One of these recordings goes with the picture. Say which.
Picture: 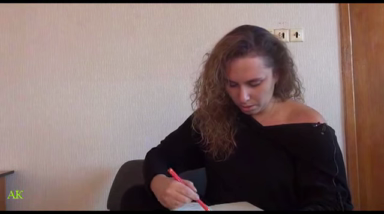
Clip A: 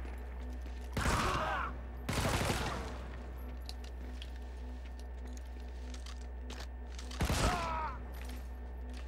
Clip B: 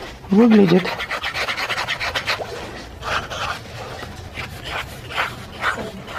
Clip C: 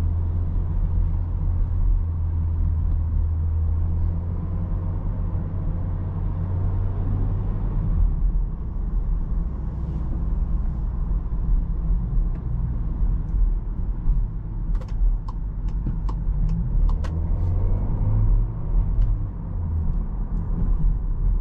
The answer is B